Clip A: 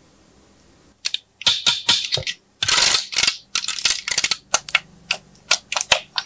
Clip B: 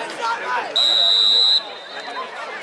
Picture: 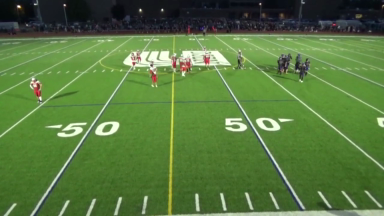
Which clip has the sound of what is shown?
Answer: B